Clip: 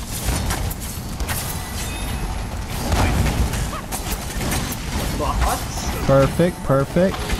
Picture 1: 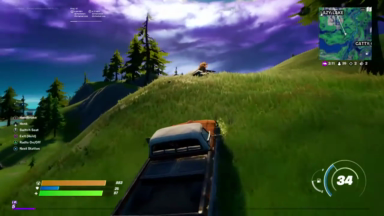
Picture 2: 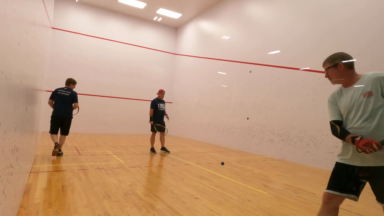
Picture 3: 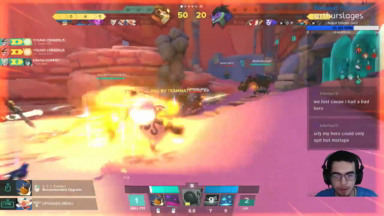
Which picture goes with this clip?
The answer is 3